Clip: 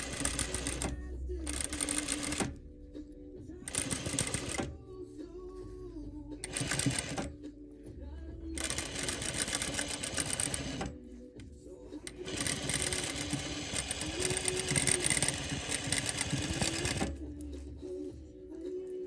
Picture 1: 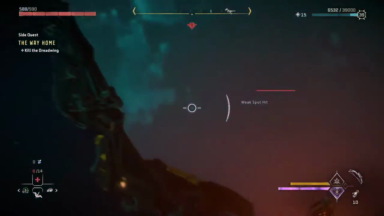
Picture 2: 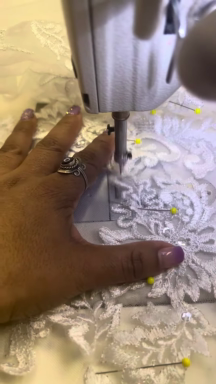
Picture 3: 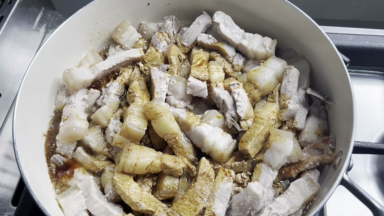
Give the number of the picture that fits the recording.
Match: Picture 2